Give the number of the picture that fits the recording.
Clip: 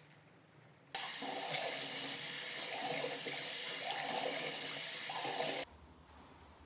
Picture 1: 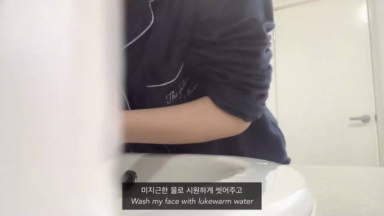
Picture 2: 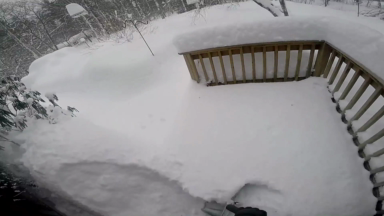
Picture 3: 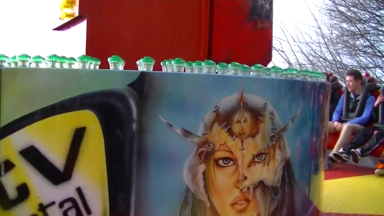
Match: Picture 1